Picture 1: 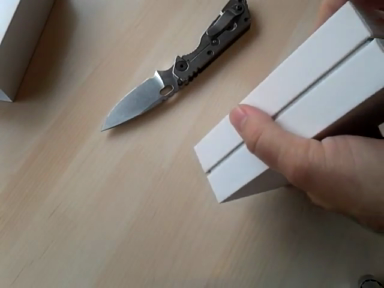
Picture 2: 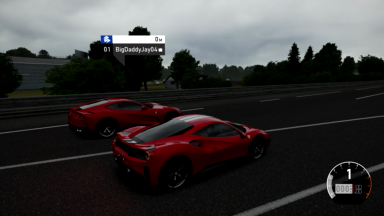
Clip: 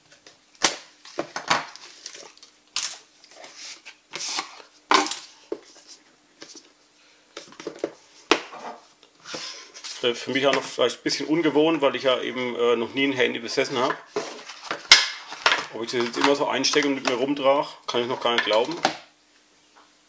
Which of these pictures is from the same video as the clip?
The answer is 1